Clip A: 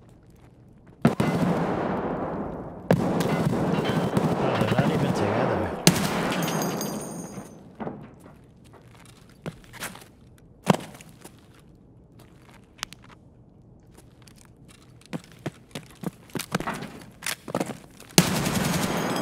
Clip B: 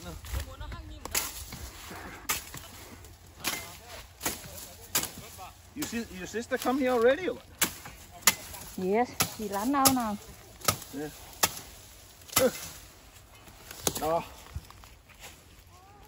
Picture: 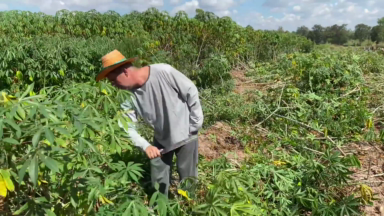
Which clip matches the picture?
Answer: B